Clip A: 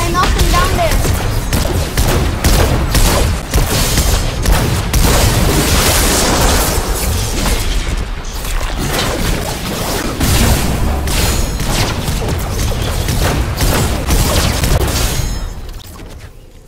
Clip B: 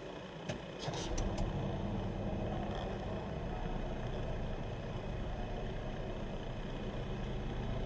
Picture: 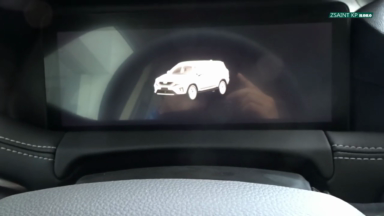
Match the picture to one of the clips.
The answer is B